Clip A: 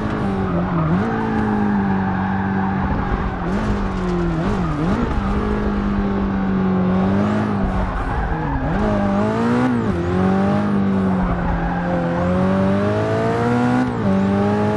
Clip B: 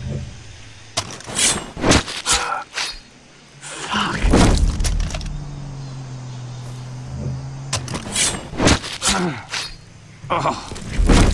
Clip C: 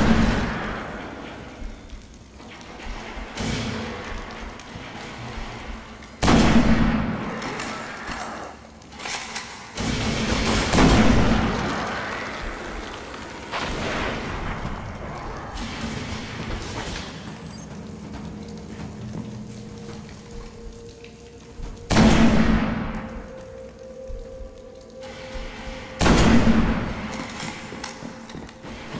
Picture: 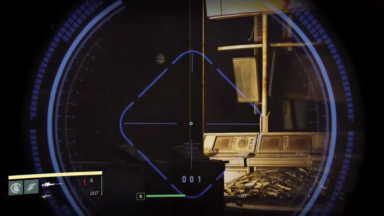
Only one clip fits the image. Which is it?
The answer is C